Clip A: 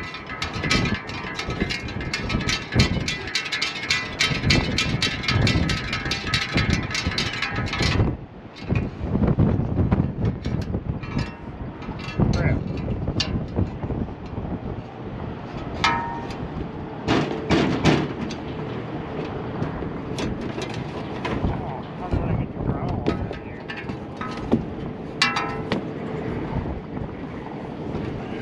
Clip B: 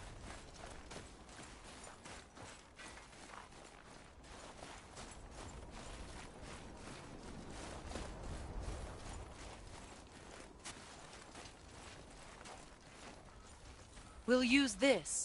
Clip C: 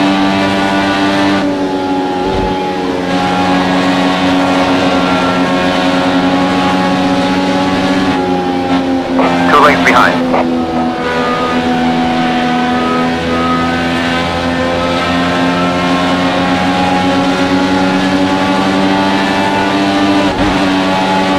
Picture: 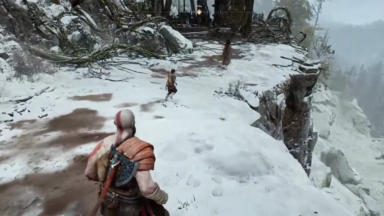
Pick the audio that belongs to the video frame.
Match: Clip B